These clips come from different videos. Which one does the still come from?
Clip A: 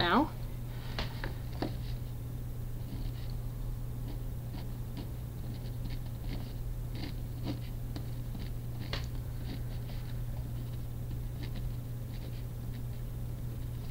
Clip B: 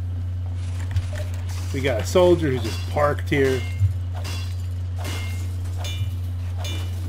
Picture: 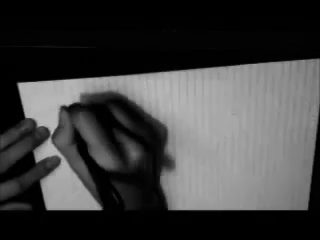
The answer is A